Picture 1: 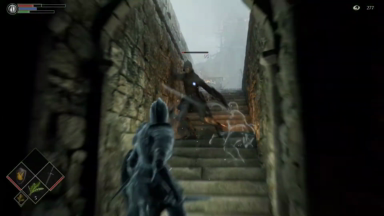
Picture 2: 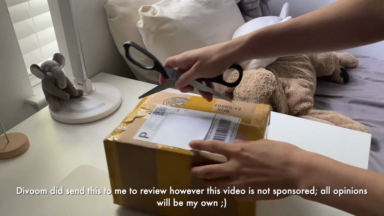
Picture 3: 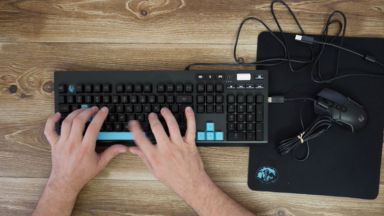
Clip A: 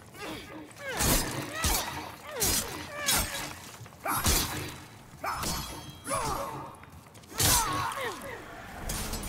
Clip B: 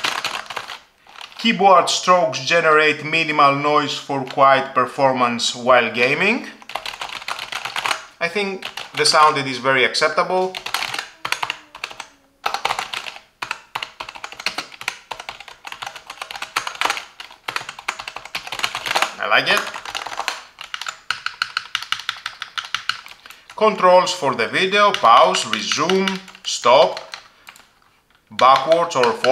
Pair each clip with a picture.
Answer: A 1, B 3